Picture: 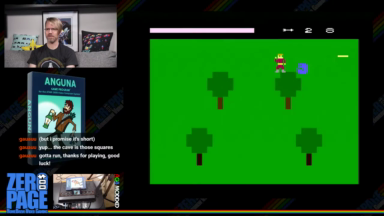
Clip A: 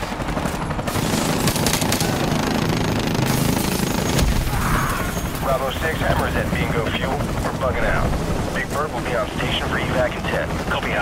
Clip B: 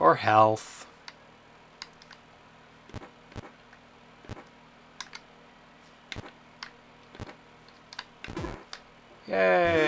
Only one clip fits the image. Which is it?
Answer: B